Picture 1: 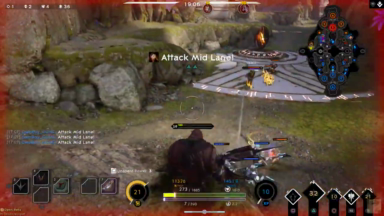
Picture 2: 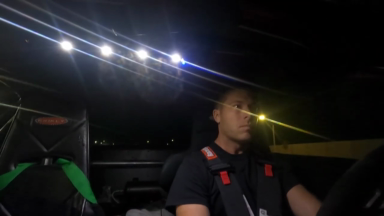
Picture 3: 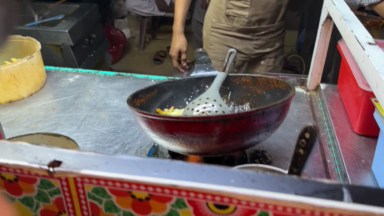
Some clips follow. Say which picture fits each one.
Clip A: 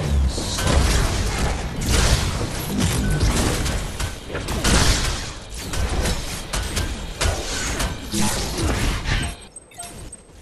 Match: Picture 1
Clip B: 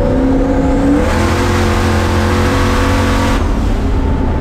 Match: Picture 2